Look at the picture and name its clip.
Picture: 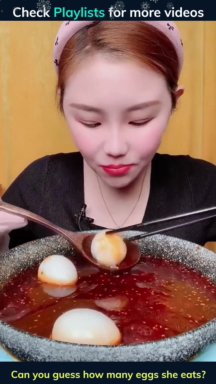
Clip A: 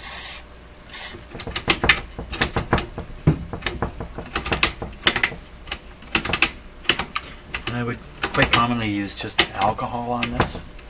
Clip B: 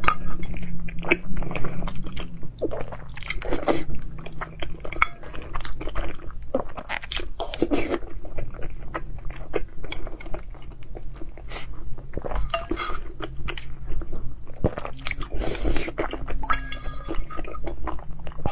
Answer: B